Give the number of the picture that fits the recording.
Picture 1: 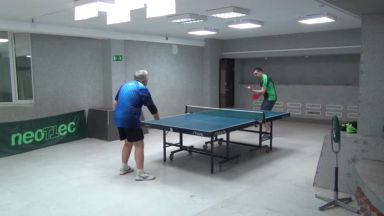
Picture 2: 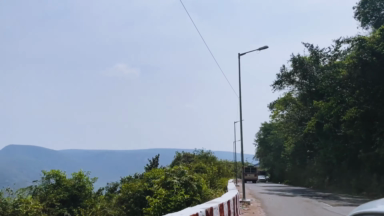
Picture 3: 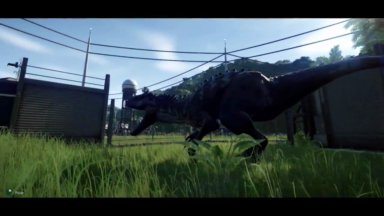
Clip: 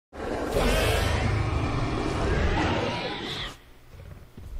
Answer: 3